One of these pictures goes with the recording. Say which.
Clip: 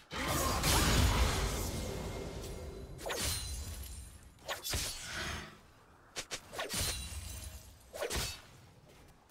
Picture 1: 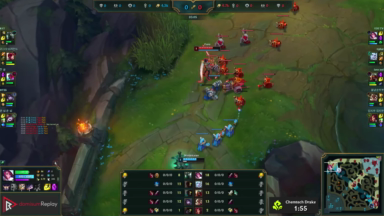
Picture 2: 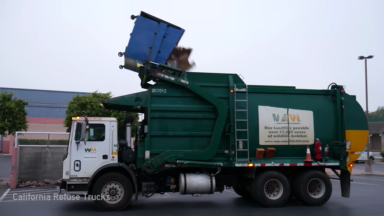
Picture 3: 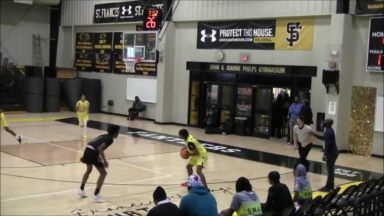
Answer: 1